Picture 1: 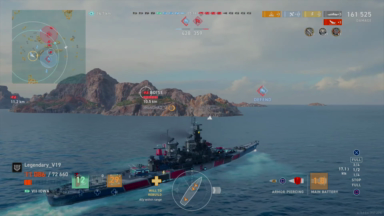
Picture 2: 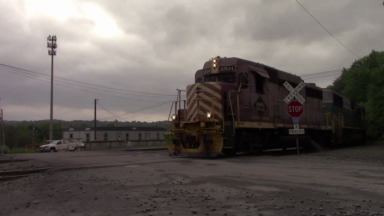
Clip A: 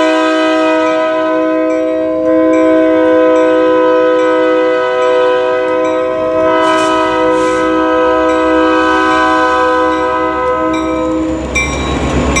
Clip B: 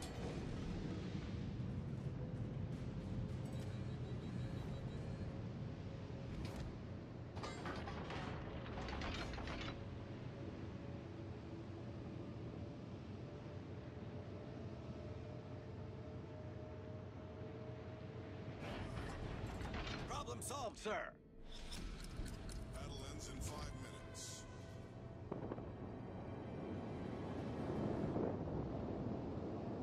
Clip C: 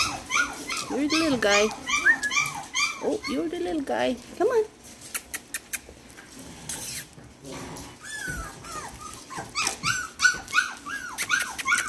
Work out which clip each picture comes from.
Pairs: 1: B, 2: A